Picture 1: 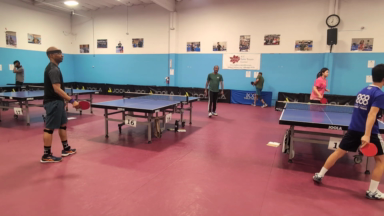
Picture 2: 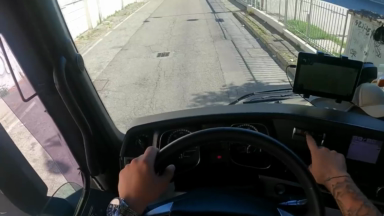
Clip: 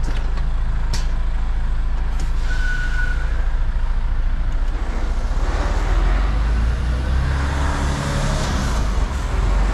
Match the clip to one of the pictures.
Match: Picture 2